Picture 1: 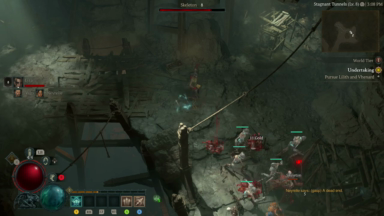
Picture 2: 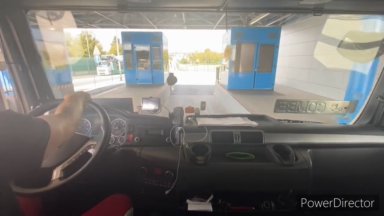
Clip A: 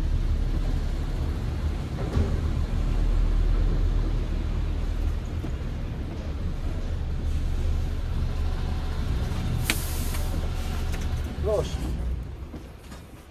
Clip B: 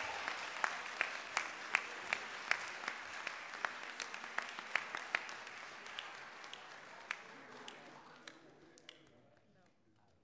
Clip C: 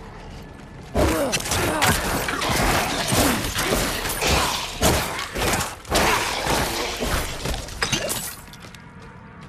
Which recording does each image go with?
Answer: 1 C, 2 A